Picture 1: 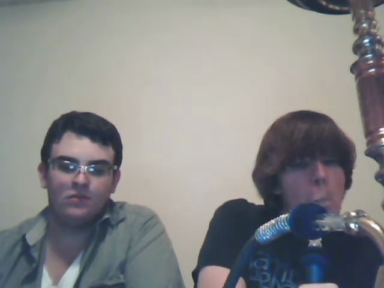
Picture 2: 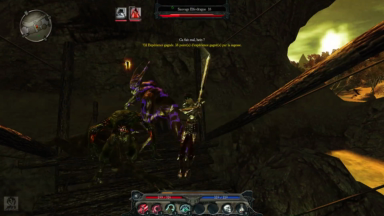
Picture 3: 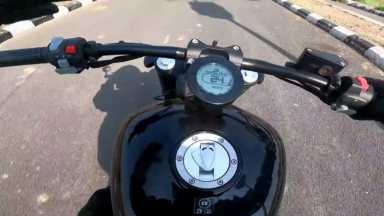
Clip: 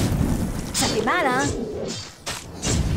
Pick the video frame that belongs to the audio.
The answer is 2